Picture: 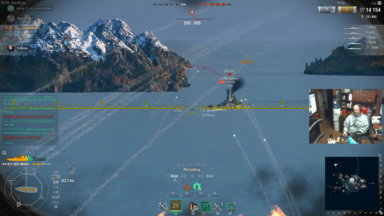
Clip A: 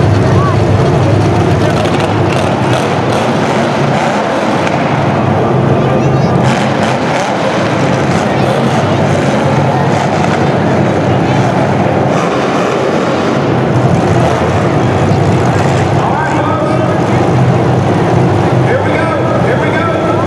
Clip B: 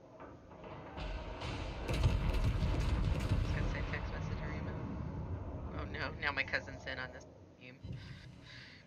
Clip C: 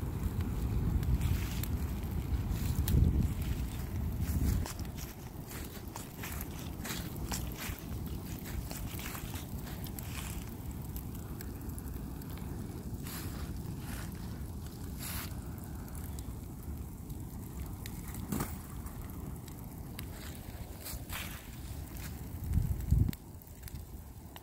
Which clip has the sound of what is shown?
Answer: B